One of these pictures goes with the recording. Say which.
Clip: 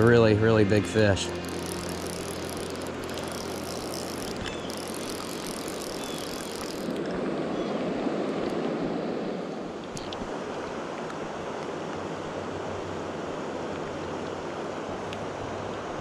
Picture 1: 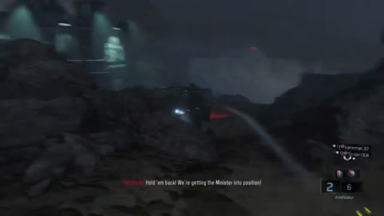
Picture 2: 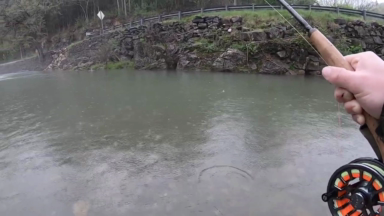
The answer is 2